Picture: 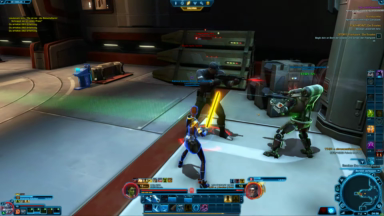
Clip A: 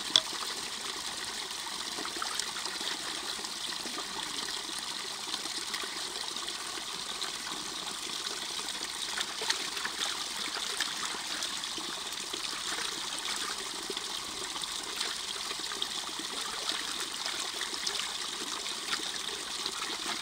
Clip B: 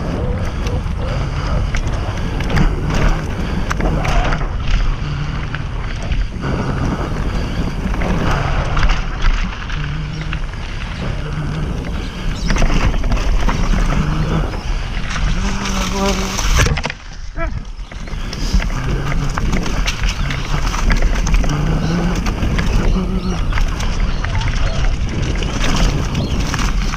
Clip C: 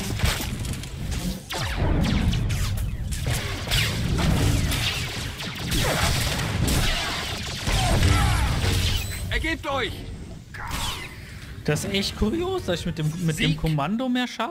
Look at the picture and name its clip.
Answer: C